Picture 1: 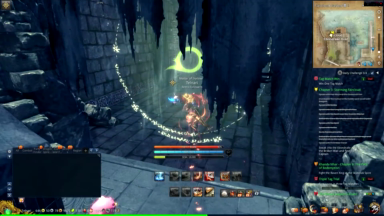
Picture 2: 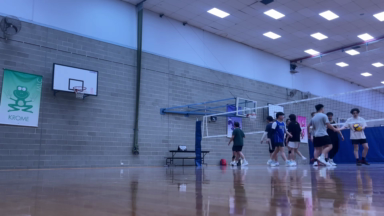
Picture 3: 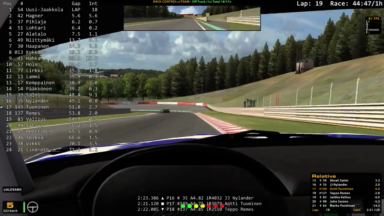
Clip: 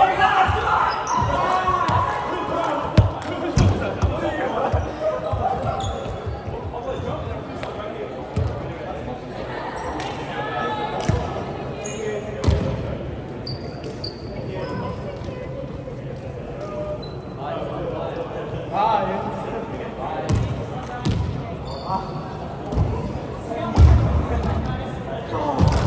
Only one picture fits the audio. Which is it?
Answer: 2